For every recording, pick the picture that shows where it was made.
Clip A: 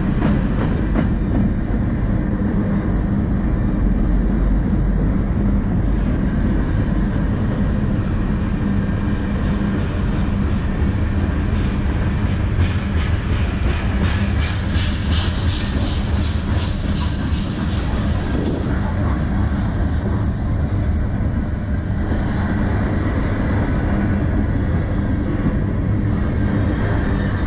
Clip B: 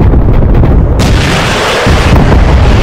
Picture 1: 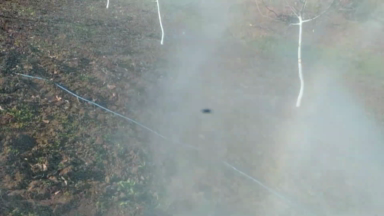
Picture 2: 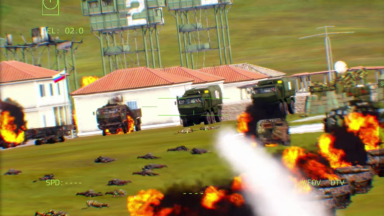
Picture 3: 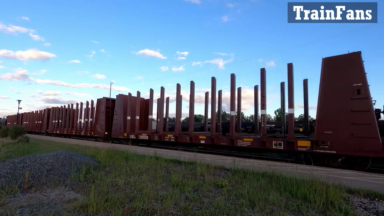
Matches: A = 3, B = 2